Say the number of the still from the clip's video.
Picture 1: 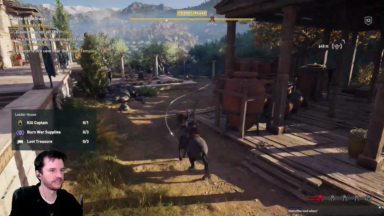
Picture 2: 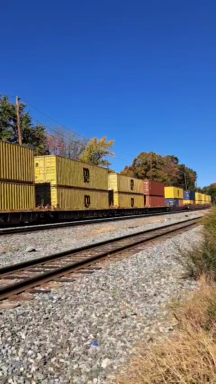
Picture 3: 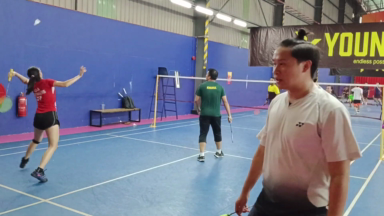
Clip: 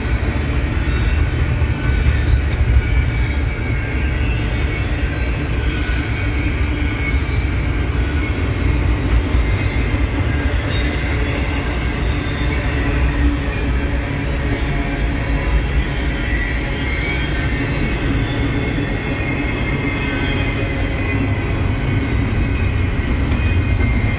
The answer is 2